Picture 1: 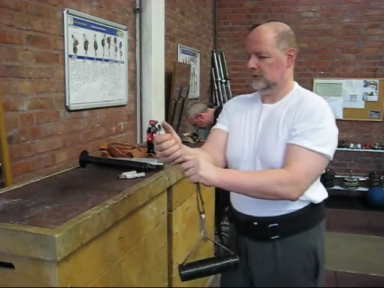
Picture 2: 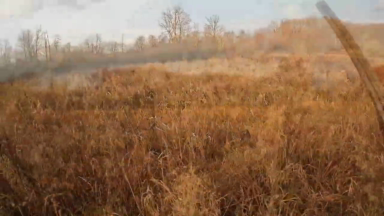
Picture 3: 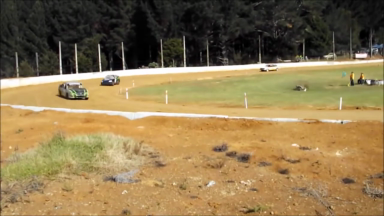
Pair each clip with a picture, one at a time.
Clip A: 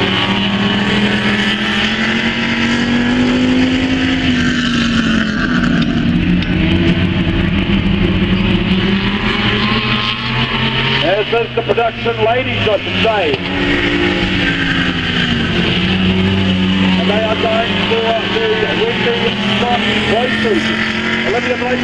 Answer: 3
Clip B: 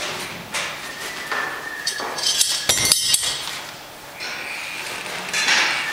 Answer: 1